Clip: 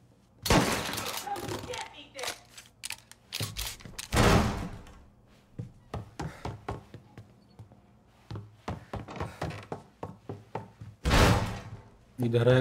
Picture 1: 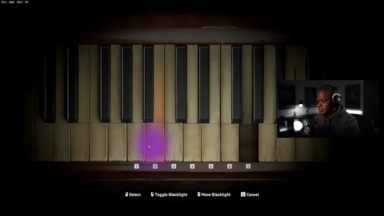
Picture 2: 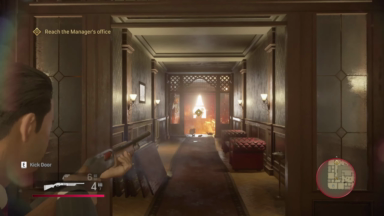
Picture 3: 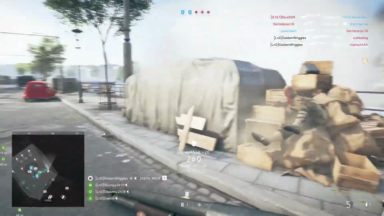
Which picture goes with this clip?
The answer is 2